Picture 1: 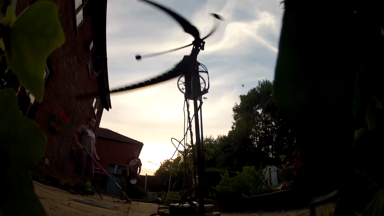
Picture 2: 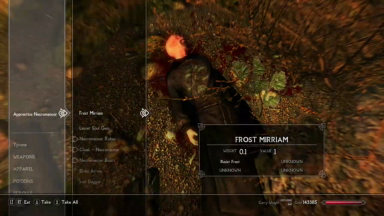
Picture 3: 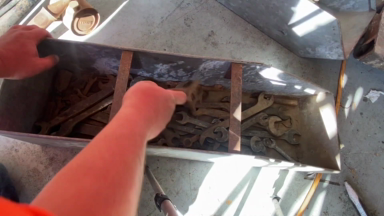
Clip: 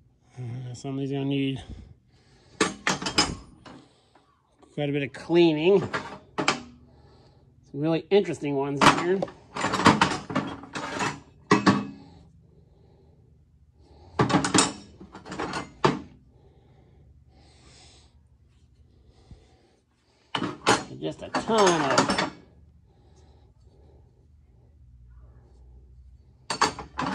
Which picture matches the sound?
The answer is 3